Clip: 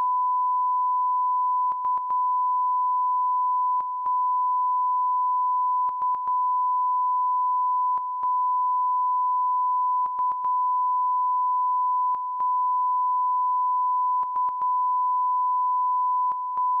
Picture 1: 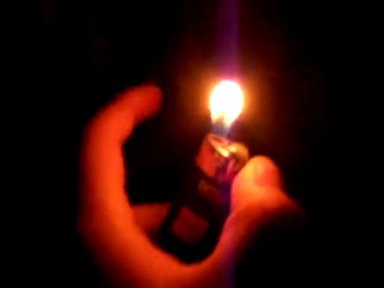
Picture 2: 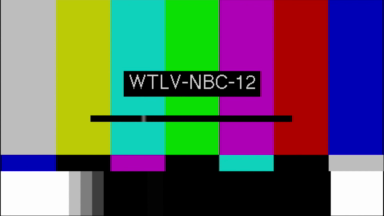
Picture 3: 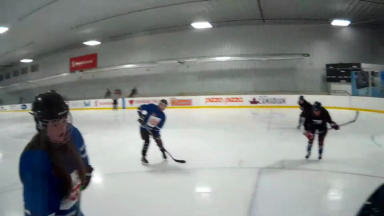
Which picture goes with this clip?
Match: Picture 2